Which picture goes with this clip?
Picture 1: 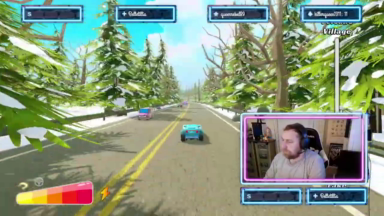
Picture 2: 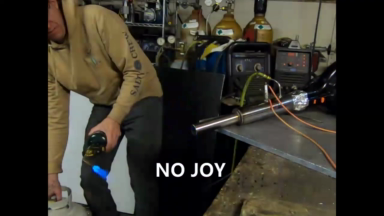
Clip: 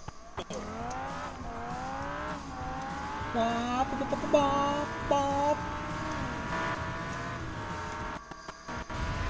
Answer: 1